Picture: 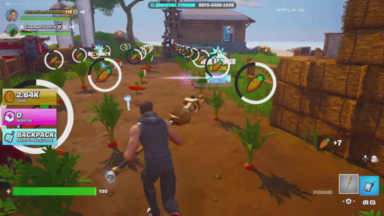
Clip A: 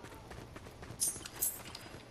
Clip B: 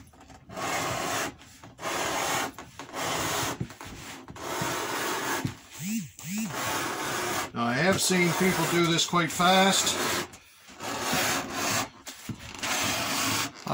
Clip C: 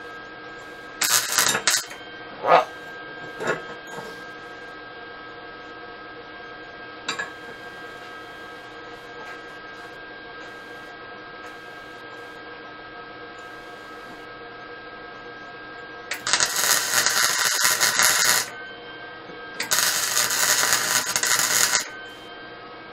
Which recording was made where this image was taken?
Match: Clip A